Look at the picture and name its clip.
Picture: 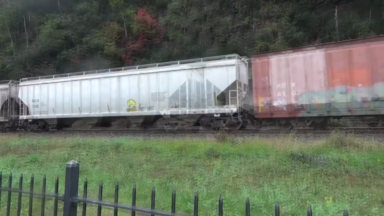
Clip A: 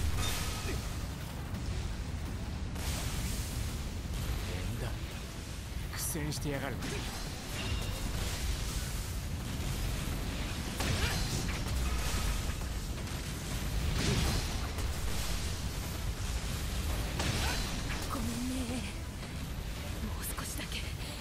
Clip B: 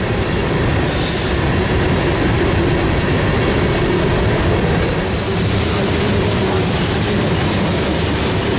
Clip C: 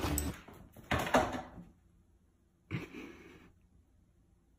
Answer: B